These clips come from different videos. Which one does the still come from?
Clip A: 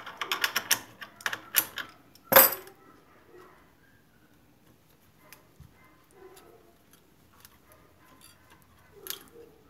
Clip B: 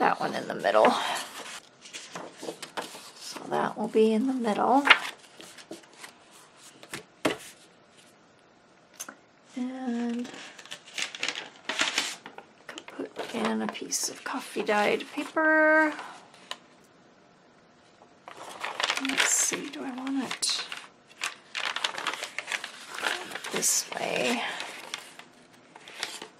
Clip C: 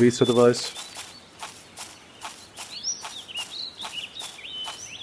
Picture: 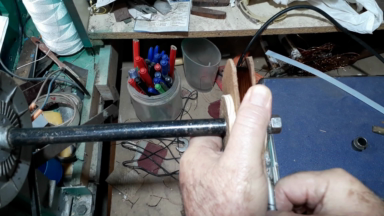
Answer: A